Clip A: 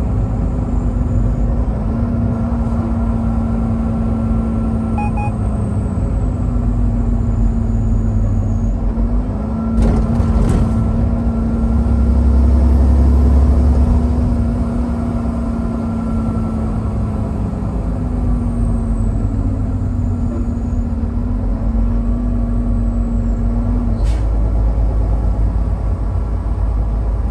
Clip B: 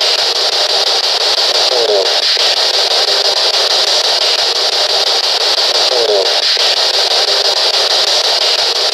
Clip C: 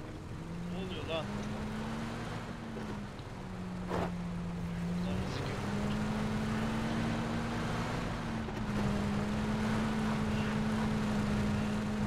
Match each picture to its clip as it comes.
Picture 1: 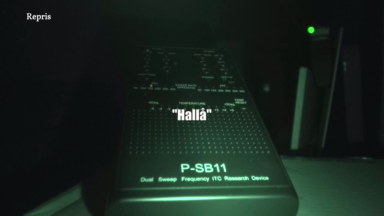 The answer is B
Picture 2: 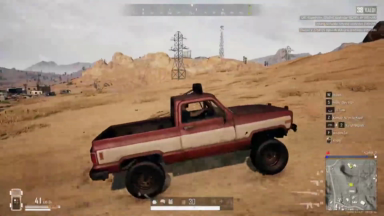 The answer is C